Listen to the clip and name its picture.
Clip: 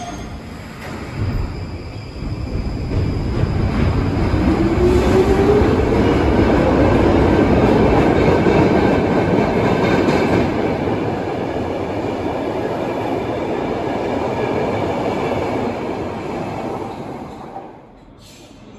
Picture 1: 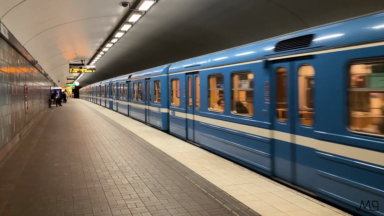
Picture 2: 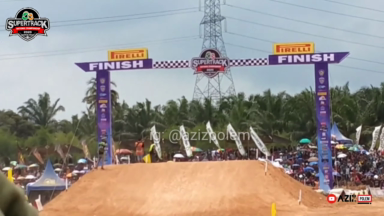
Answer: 1